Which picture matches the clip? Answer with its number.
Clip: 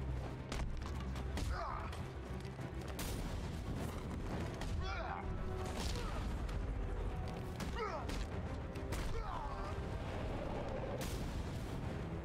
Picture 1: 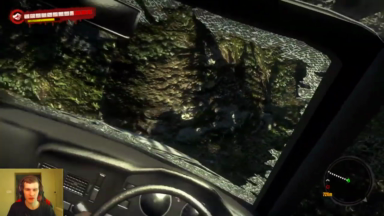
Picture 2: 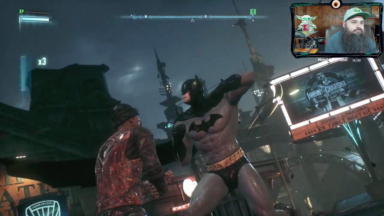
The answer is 2